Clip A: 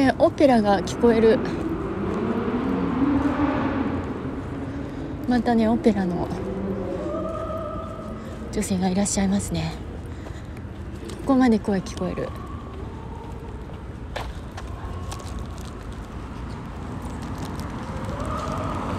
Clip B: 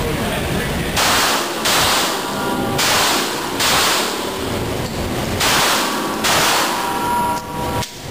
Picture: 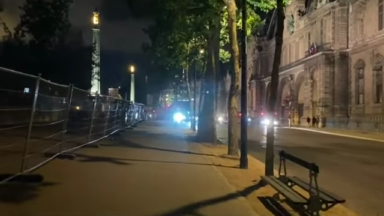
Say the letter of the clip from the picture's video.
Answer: A